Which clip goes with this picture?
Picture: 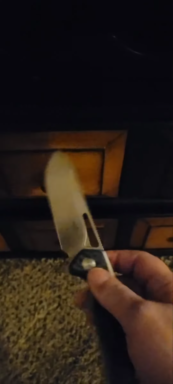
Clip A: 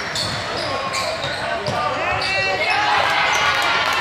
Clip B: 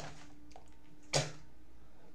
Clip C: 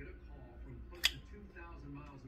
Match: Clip C